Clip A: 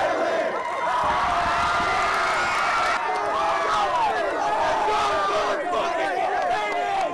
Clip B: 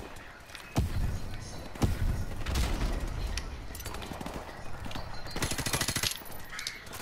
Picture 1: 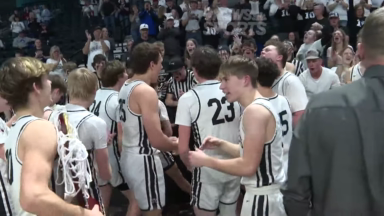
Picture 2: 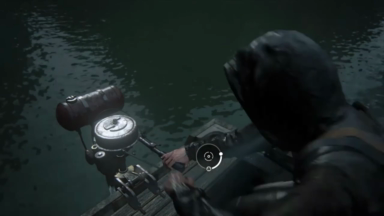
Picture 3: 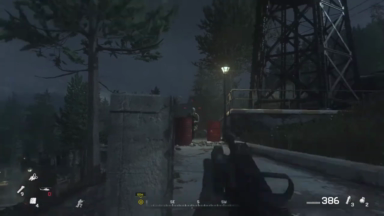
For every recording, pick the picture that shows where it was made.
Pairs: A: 1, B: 3